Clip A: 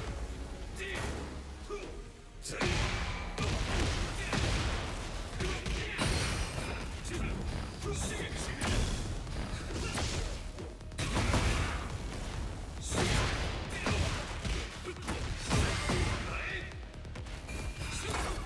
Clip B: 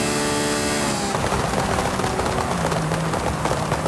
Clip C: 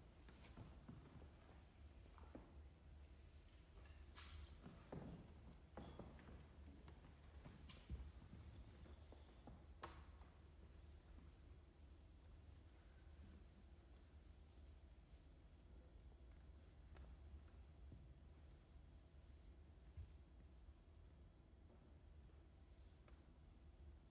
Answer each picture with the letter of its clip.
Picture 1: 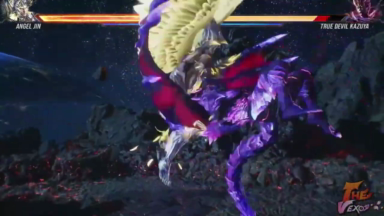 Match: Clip A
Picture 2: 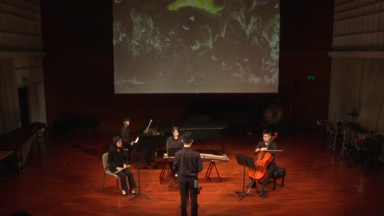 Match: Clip C